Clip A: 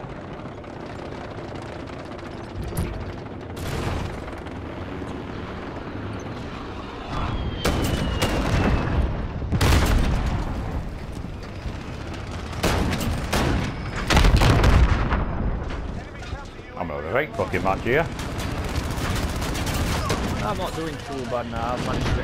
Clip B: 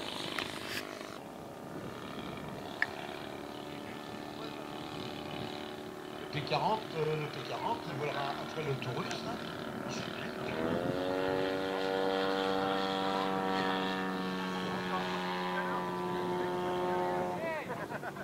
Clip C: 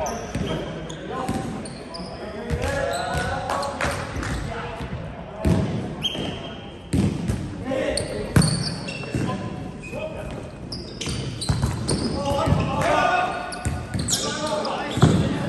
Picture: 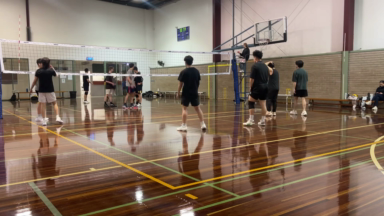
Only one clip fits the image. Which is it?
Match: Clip C